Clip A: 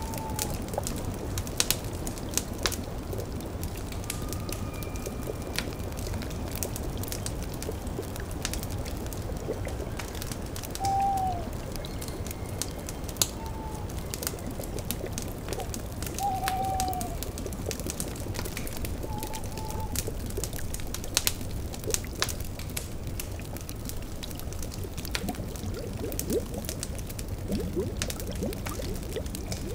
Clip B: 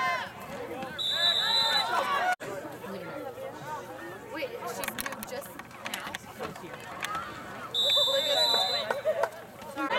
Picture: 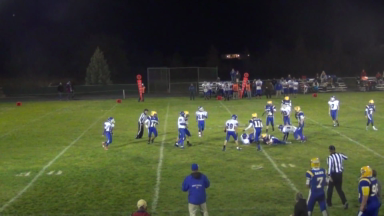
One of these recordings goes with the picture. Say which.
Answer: B